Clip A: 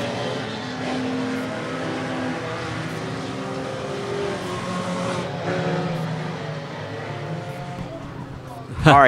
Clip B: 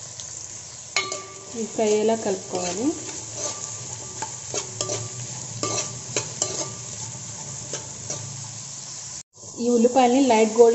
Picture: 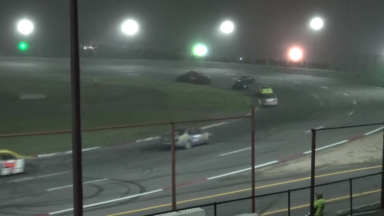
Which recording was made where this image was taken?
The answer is A